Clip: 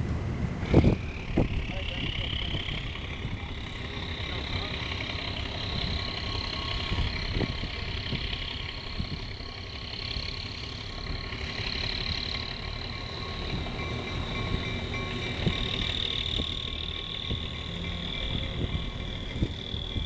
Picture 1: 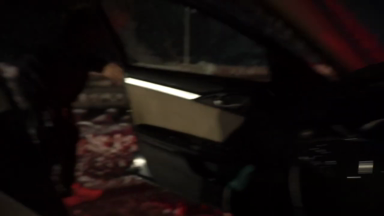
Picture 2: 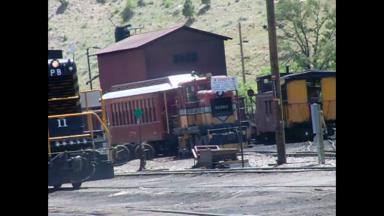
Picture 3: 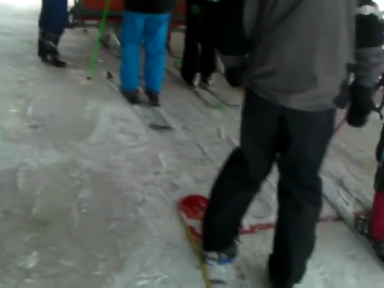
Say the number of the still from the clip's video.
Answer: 2